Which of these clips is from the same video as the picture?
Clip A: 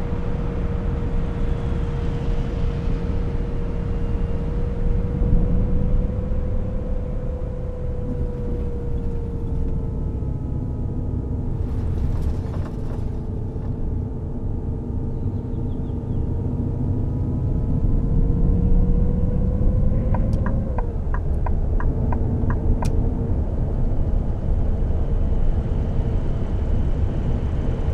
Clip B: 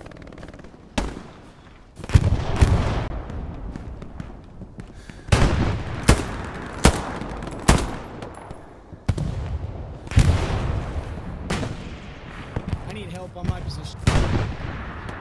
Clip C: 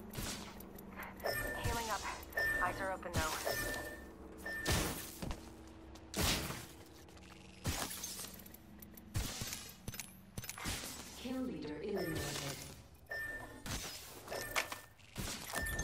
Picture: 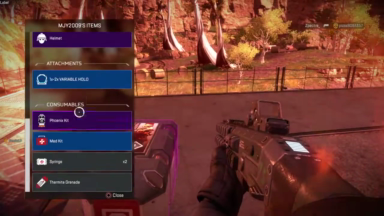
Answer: C